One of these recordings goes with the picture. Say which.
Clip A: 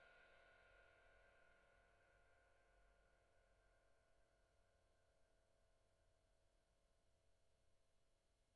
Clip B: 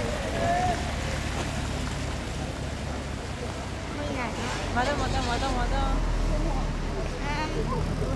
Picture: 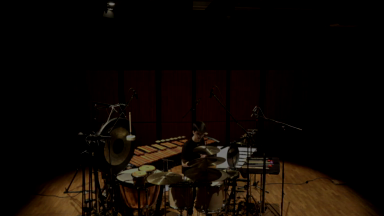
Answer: A